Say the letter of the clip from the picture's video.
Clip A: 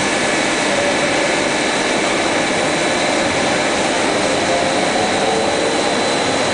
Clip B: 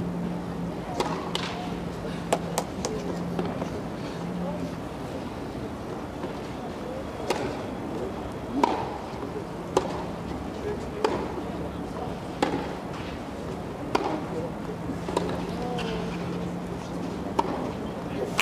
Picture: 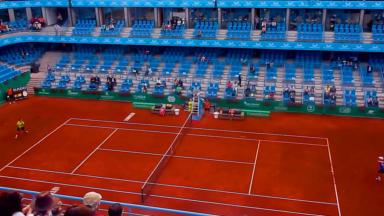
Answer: B